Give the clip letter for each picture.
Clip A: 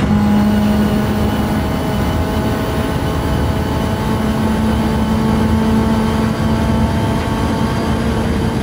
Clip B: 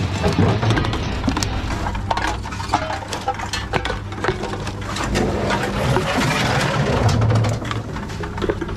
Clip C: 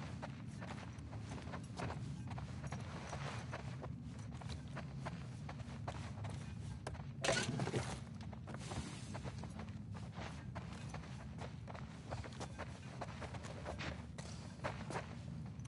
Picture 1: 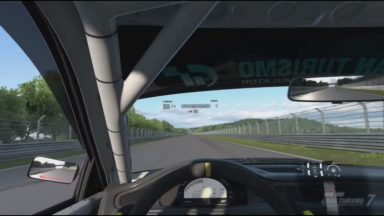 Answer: A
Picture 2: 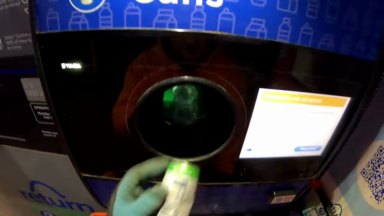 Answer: B